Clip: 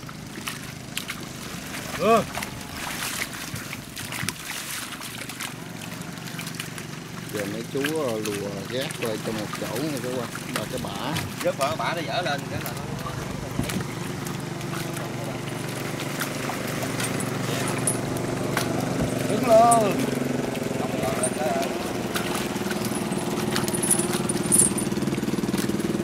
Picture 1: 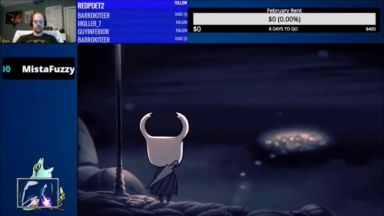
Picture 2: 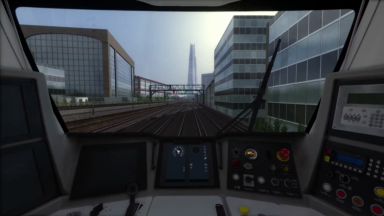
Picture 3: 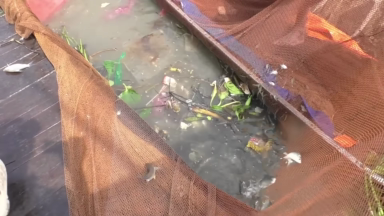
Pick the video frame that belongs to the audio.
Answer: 3